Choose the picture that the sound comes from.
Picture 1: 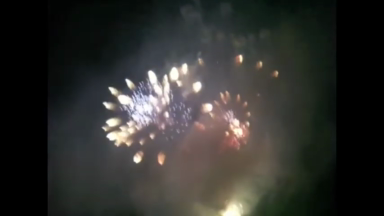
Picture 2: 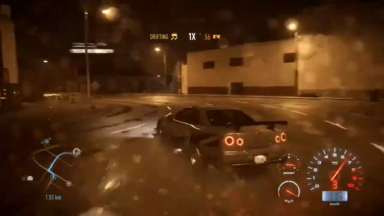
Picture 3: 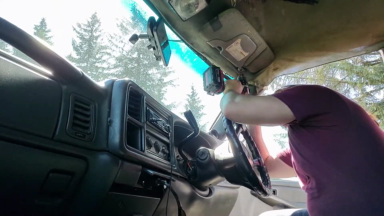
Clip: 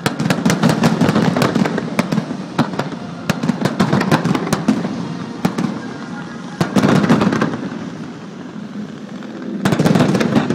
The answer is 1